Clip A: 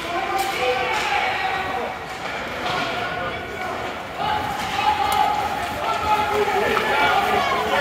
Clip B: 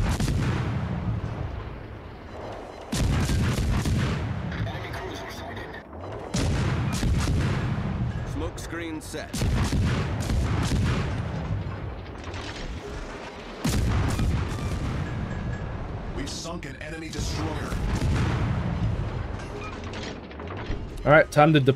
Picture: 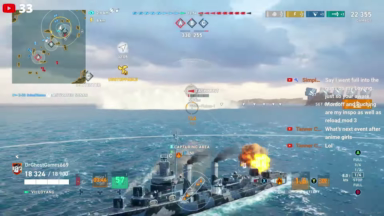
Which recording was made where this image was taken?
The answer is B